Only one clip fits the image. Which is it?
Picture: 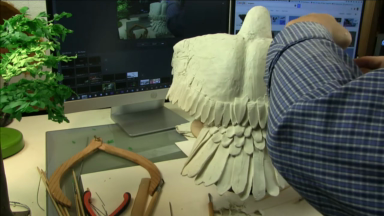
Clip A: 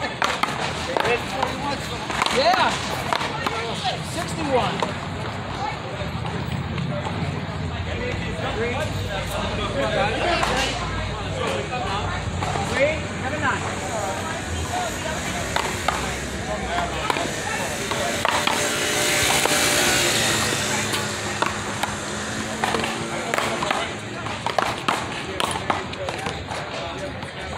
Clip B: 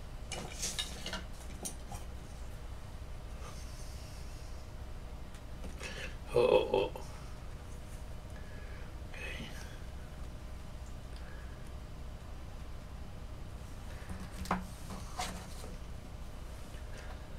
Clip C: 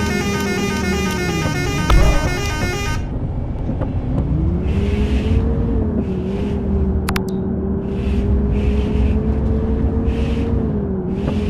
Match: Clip B